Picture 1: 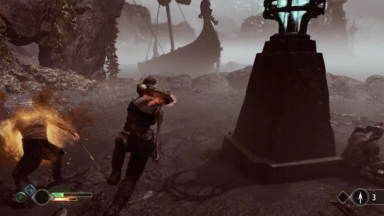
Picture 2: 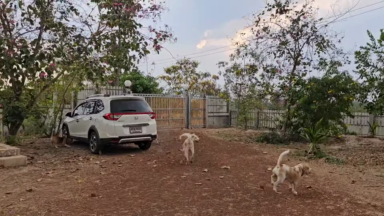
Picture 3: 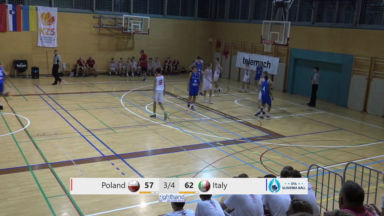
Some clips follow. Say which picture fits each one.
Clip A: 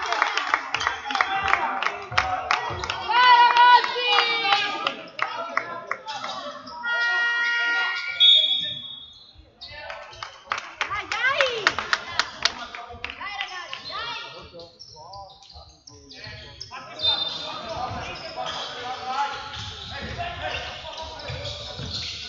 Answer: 3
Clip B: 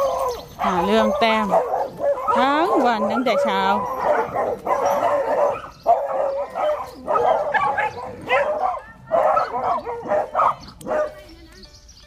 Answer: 2